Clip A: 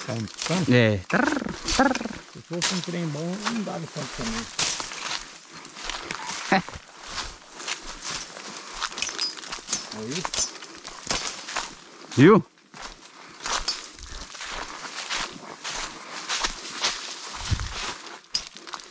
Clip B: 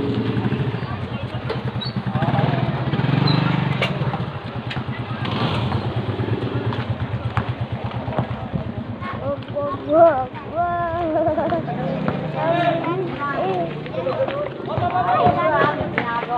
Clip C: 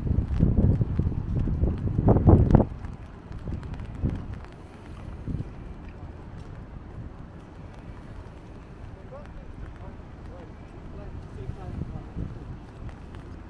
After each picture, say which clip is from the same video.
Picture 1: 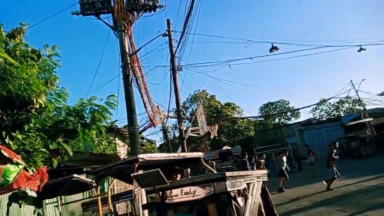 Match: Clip B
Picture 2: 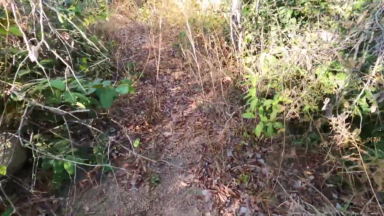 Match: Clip A